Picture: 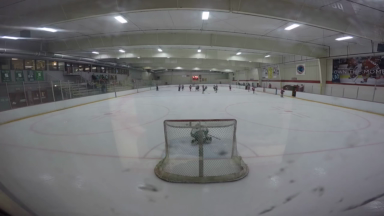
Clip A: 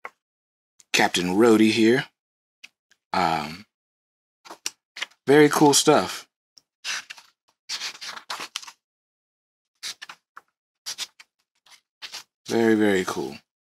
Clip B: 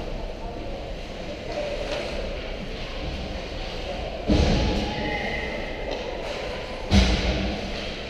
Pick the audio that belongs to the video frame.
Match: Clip B